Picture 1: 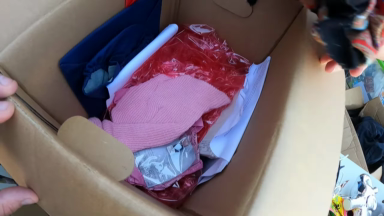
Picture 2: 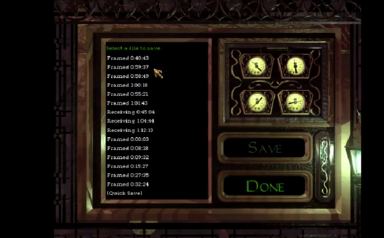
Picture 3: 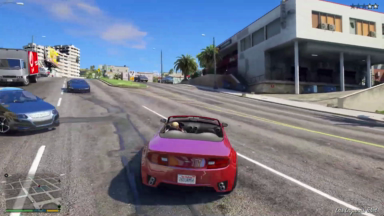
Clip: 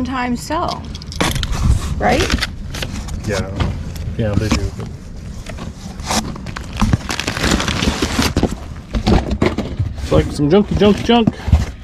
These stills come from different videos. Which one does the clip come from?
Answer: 1